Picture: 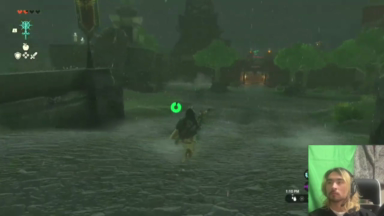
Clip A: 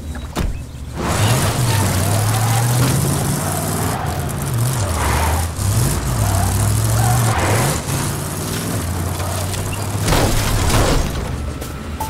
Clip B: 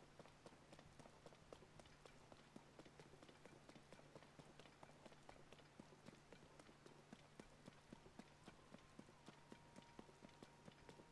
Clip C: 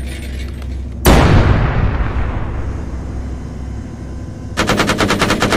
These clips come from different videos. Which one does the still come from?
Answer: B